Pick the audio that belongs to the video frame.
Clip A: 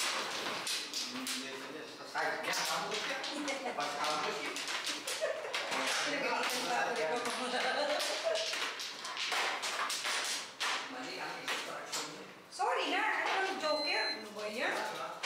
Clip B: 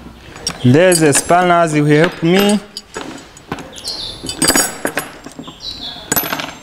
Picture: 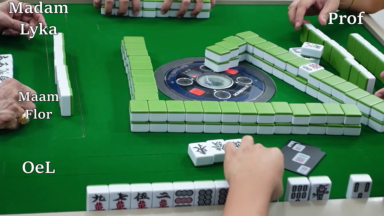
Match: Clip A